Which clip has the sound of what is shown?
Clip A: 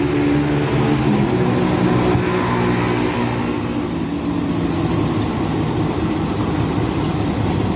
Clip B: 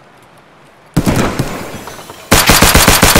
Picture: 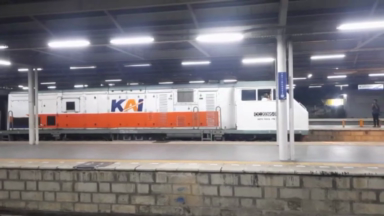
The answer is A